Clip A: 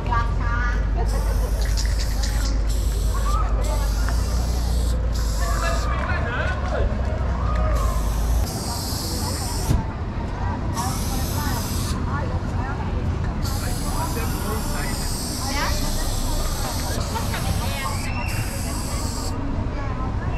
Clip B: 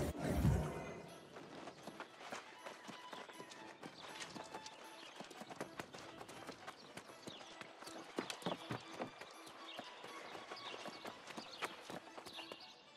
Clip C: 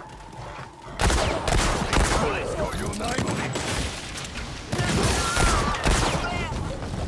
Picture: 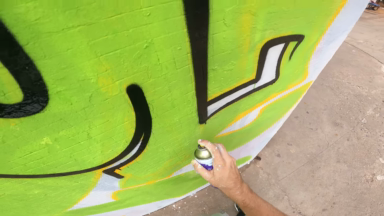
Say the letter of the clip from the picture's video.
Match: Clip A